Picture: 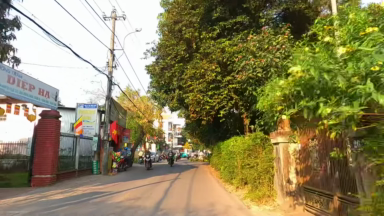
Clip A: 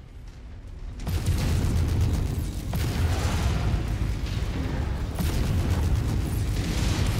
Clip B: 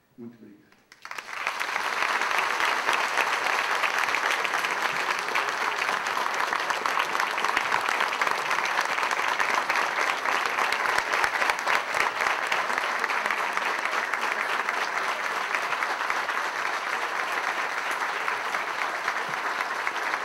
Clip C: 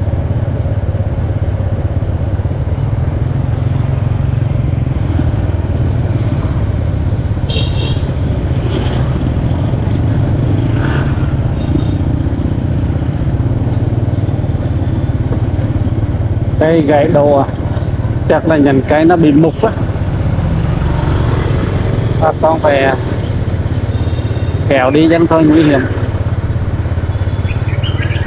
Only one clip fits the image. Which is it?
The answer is C